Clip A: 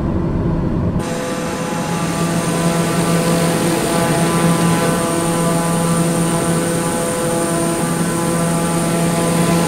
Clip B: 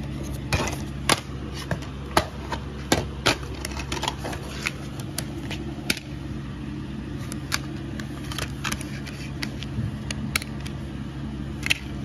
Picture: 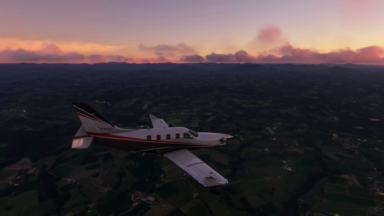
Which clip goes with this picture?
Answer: A